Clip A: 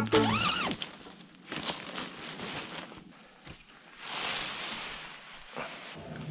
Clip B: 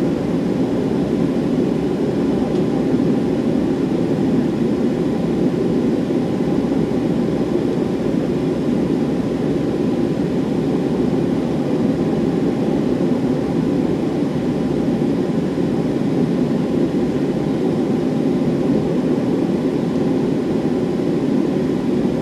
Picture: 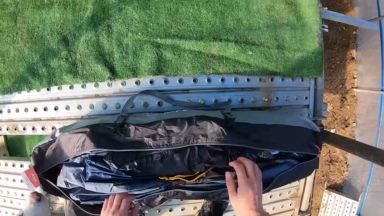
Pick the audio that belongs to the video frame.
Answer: A